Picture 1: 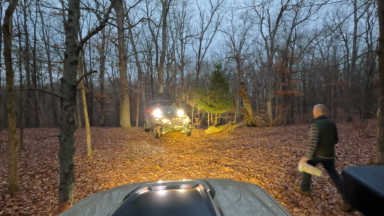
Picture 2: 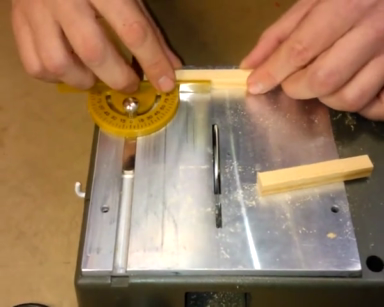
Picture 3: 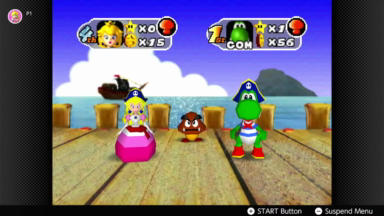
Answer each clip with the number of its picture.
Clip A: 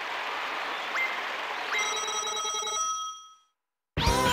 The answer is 3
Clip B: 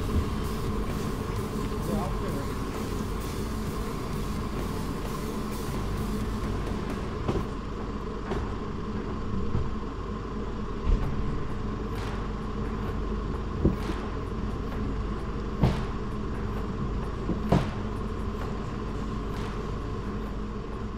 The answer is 1